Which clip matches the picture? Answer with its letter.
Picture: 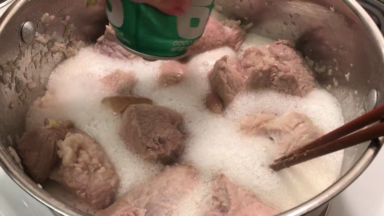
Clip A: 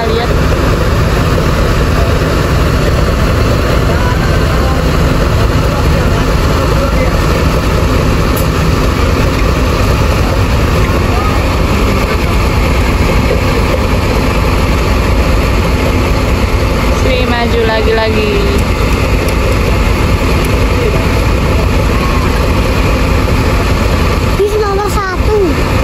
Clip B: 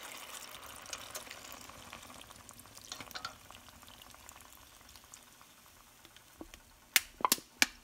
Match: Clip B